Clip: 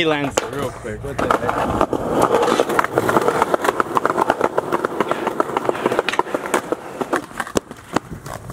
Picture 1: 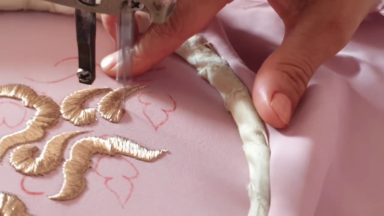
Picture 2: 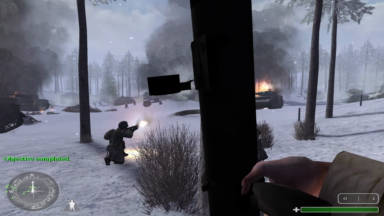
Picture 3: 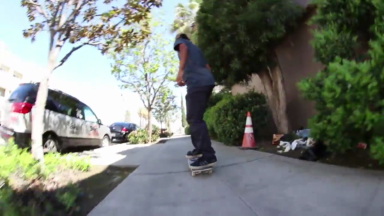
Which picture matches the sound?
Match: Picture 3